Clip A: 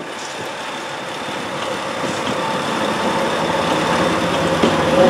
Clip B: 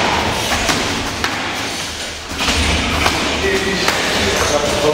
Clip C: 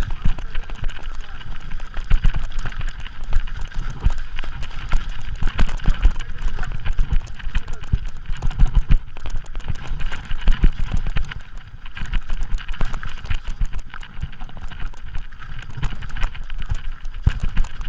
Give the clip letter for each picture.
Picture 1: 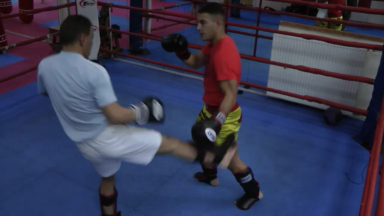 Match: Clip B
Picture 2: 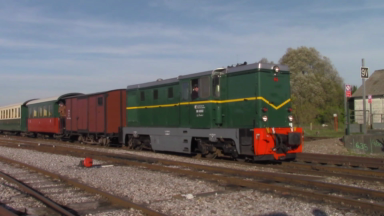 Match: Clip A